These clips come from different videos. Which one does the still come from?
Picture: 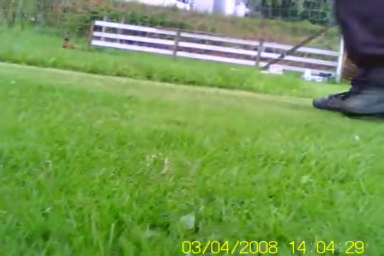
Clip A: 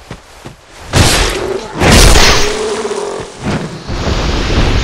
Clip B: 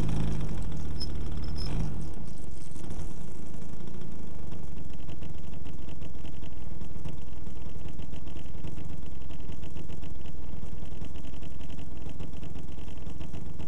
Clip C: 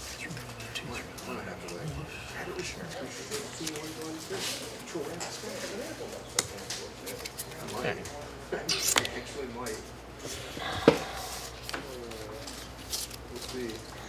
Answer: B